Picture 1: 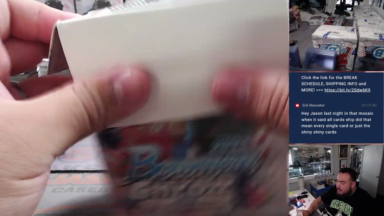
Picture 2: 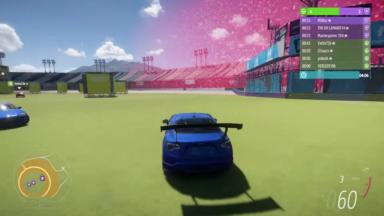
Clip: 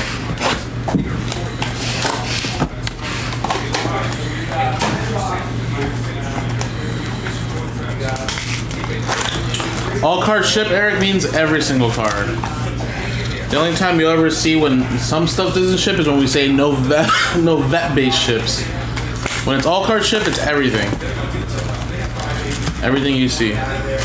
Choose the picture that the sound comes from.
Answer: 1